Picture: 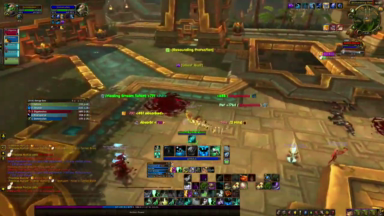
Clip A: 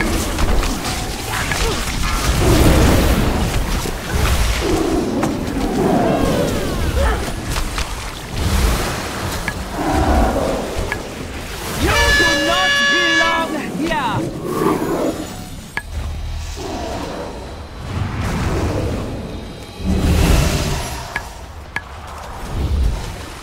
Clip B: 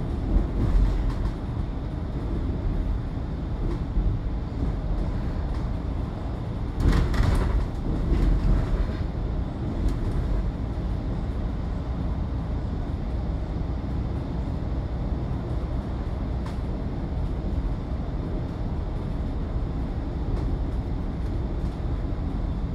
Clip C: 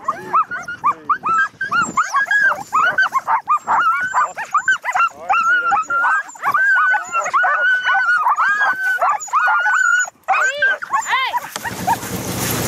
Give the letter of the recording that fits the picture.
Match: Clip A